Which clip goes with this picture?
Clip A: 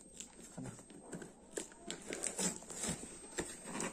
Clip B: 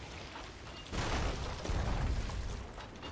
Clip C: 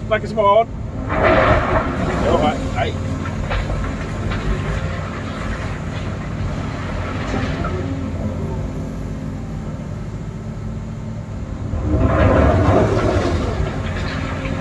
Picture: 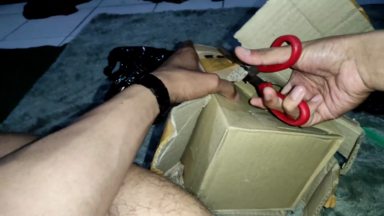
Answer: A